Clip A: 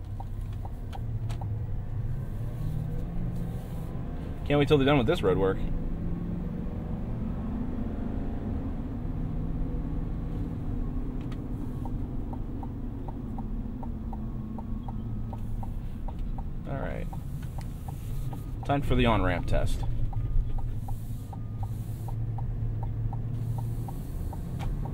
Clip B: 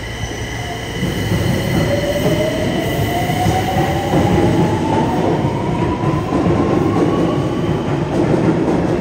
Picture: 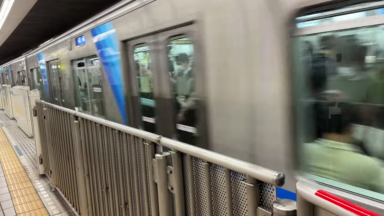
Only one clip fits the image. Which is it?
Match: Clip B